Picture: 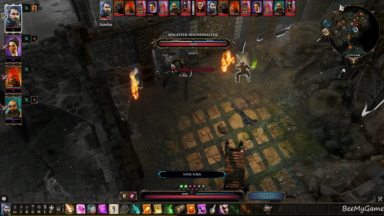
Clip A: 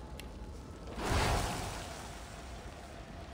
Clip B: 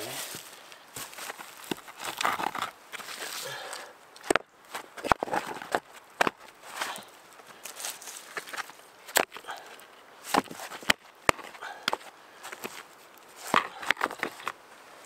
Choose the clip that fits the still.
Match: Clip A